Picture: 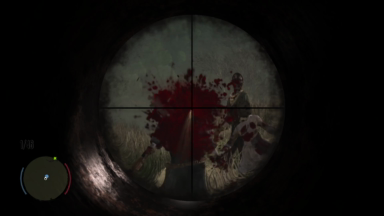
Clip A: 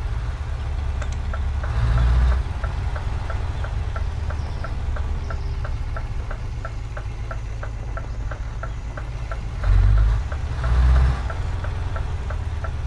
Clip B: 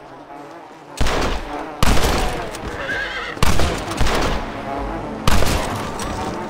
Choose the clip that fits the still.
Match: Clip B